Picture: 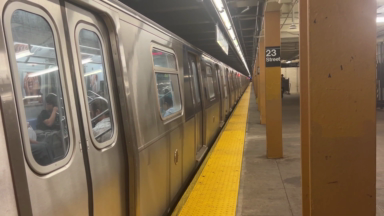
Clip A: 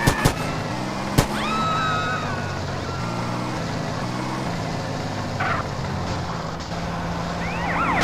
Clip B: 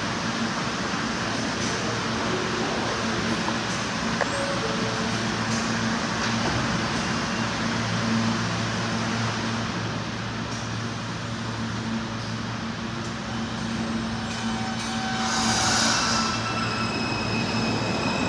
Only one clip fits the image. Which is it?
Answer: B